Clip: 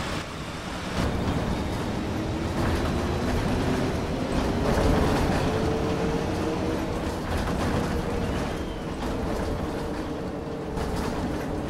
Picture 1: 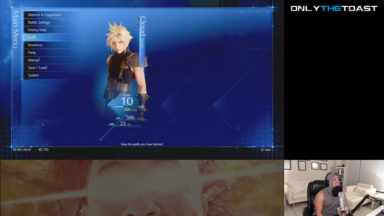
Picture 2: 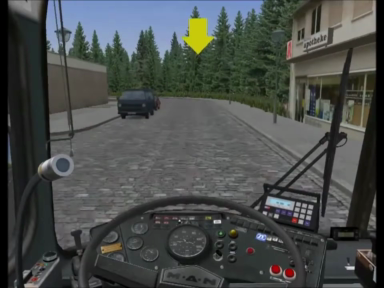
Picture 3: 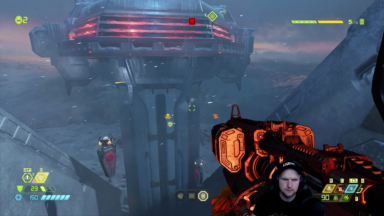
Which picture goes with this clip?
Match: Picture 2